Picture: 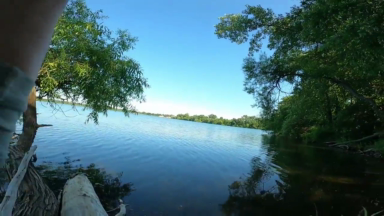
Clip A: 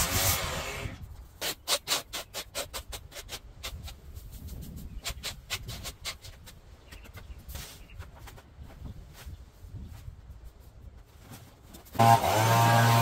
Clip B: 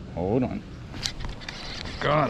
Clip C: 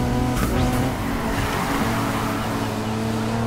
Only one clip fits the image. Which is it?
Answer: B